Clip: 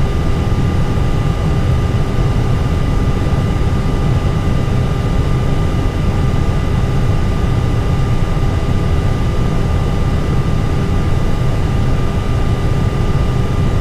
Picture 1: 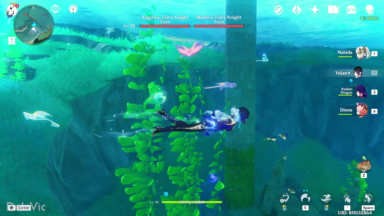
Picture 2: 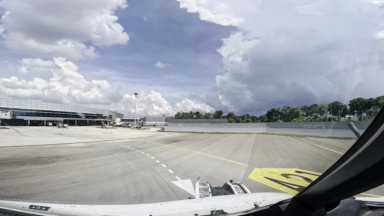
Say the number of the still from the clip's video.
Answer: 2